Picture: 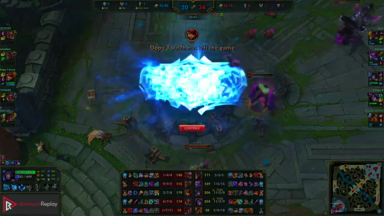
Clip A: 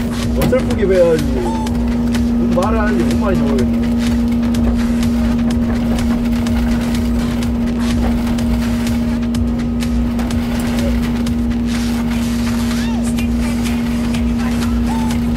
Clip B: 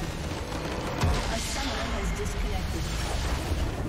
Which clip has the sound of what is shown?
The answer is B